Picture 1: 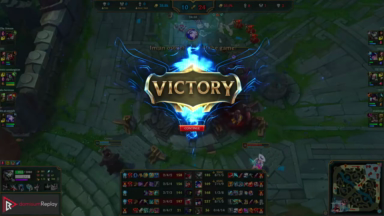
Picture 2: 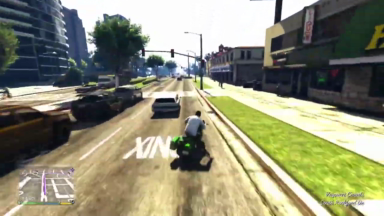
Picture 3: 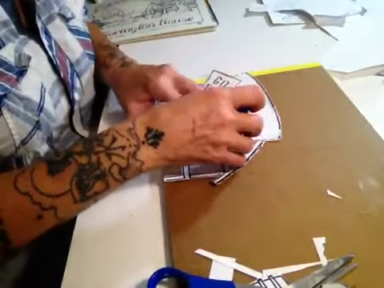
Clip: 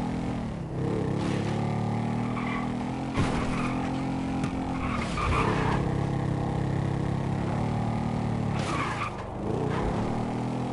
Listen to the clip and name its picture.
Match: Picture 2